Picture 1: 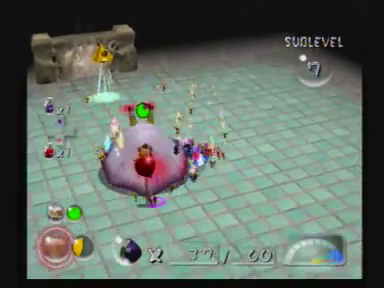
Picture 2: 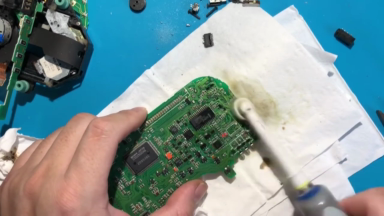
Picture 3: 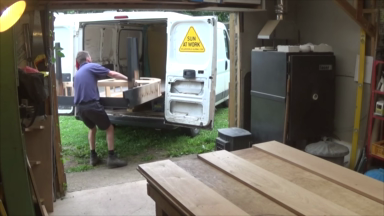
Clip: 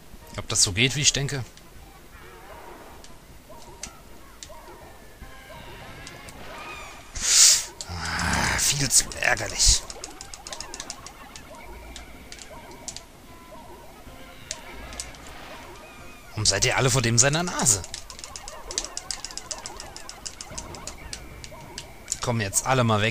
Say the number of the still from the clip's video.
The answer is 1